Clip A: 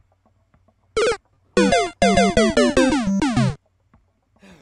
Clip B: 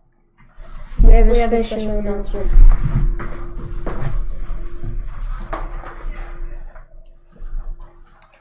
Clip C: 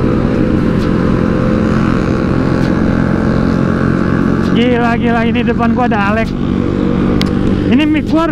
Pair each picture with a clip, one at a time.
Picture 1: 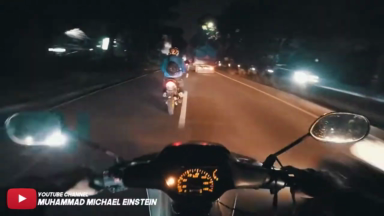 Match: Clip C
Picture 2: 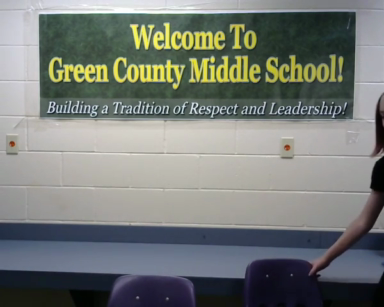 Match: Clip B